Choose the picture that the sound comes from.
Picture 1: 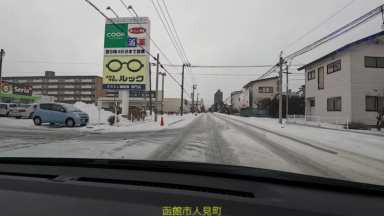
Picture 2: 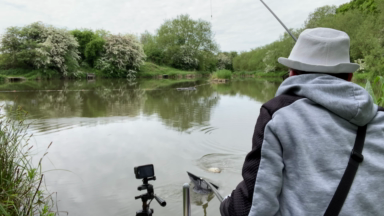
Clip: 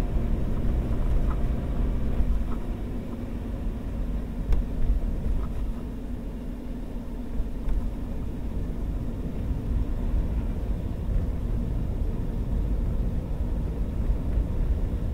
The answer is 1